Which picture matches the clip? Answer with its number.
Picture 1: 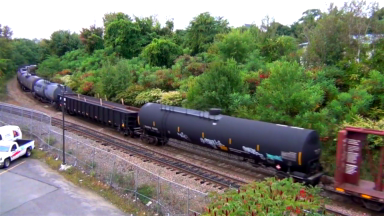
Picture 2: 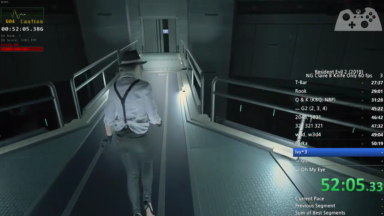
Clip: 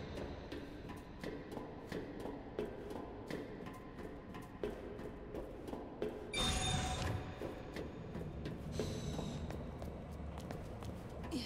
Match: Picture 2